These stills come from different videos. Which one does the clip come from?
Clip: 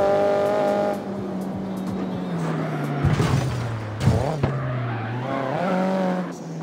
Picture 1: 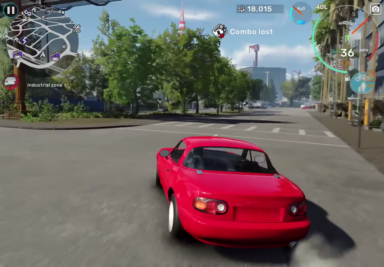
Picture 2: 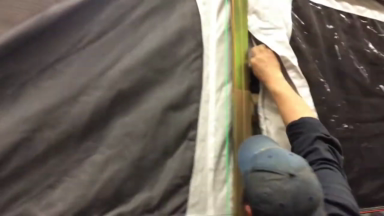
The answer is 1